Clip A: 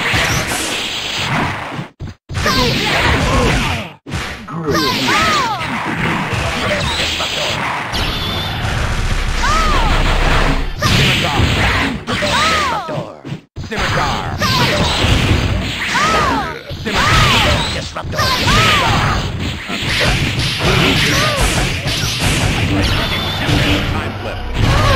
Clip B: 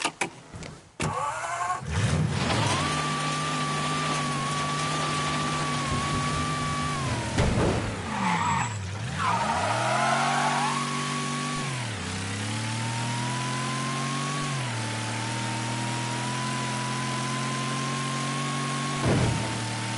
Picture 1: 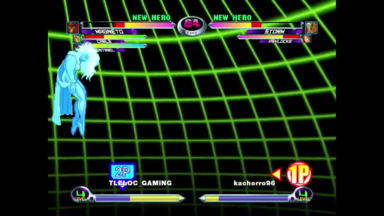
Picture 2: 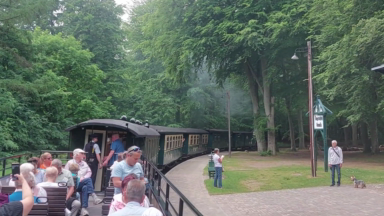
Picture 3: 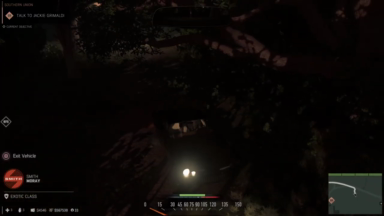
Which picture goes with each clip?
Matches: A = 1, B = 3